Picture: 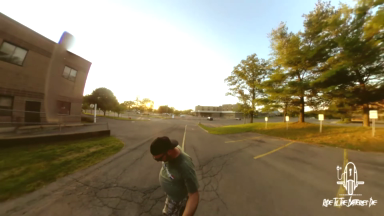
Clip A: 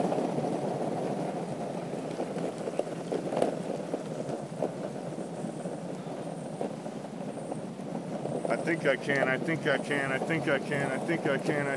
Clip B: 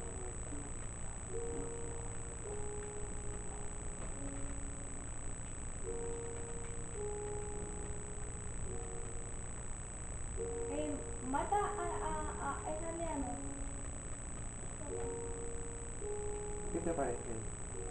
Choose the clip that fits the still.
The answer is A